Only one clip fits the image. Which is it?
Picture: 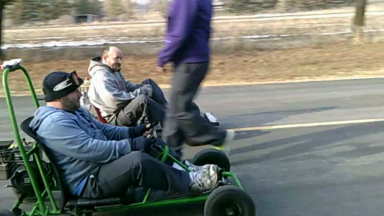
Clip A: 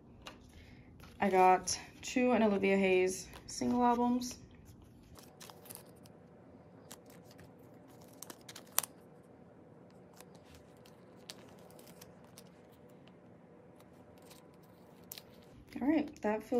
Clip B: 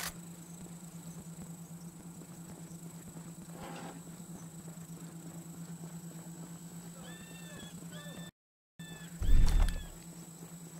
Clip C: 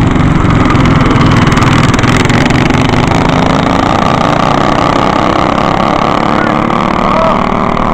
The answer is C